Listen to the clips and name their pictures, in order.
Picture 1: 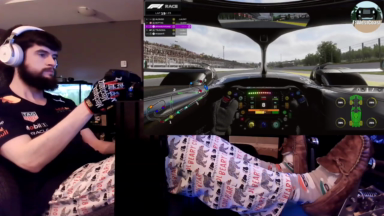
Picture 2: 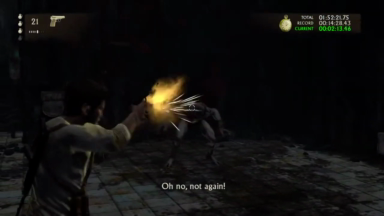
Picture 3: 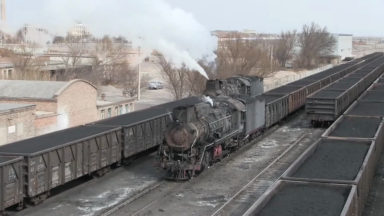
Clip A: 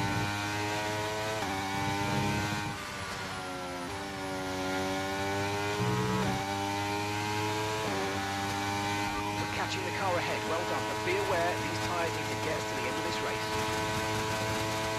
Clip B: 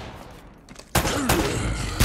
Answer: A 1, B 2